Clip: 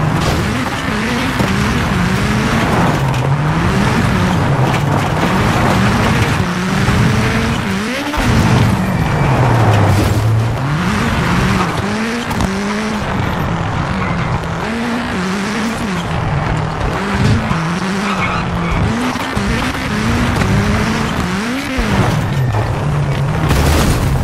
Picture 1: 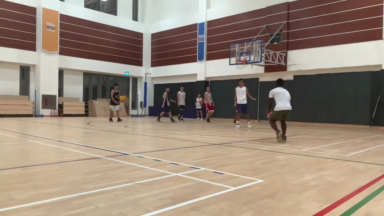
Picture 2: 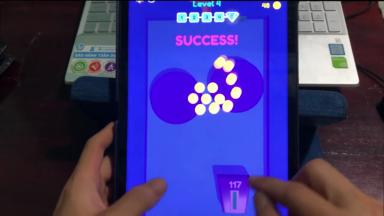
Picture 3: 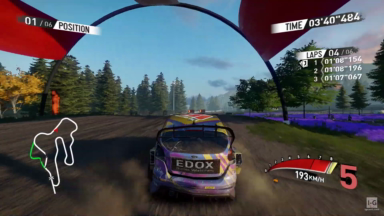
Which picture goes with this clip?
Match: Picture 3